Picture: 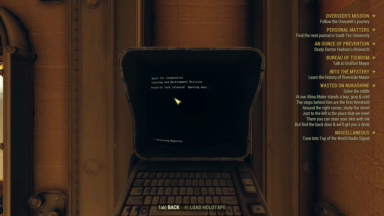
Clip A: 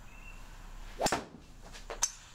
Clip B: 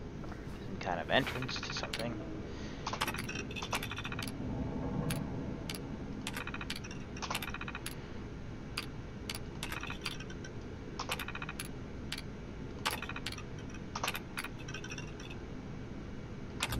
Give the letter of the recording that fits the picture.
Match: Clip B